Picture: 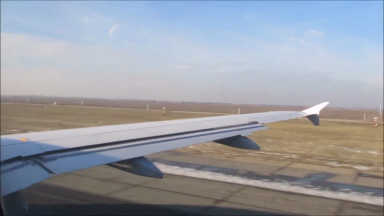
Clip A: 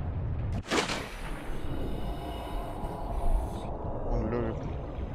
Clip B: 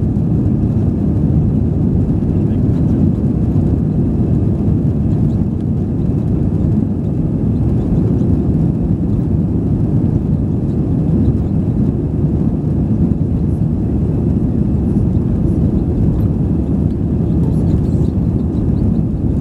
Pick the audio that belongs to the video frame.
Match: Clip B